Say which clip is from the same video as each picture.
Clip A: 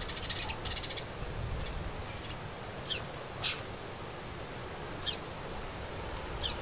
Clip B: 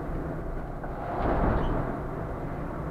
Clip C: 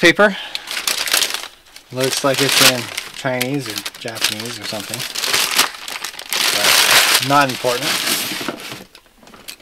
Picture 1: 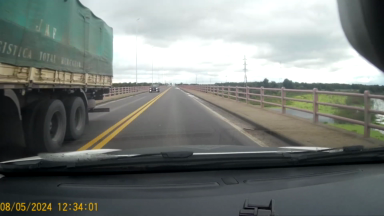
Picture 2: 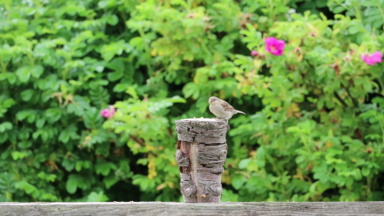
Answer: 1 B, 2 A